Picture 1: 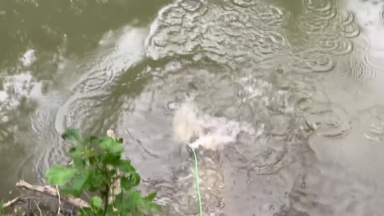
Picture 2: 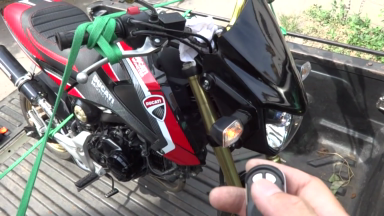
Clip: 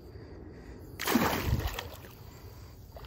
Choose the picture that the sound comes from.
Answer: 1